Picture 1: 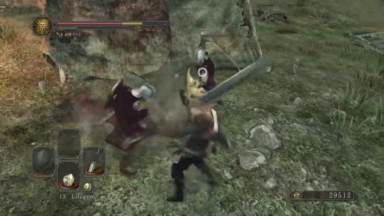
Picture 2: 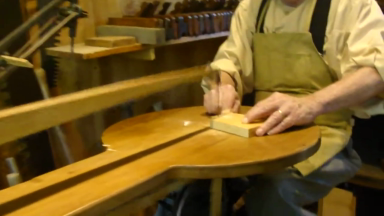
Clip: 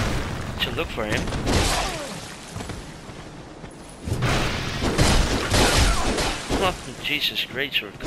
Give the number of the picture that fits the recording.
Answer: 1